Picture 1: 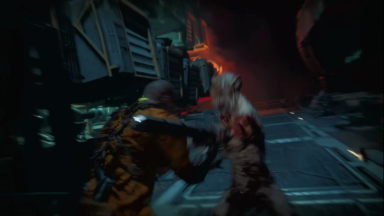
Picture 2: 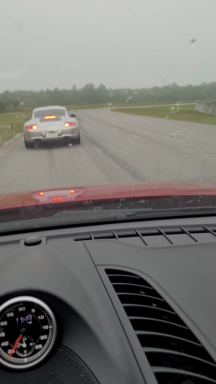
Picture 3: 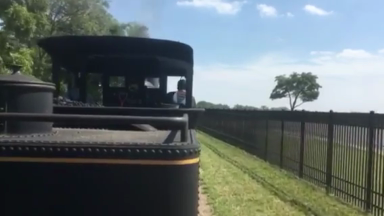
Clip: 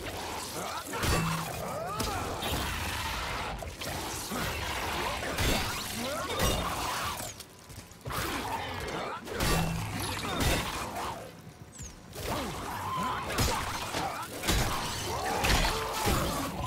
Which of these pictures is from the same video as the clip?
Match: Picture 1